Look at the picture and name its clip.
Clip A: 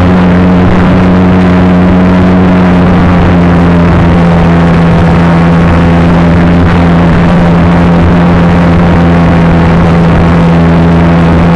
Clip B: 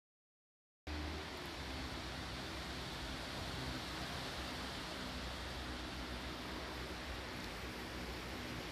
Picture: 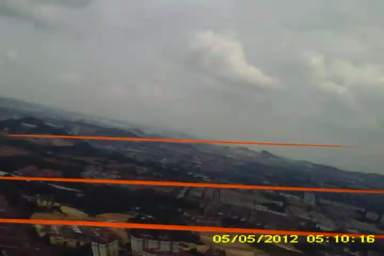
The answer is A